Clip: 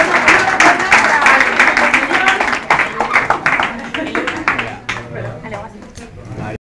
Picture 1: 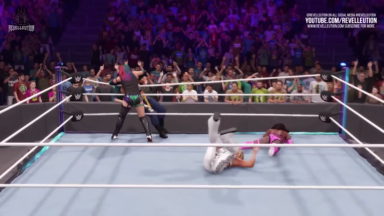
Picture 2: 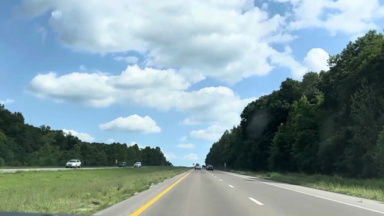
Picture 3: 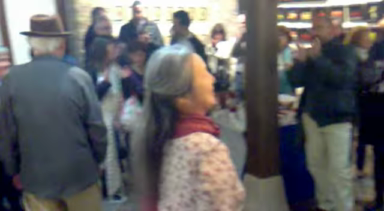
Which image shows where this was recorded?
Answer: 3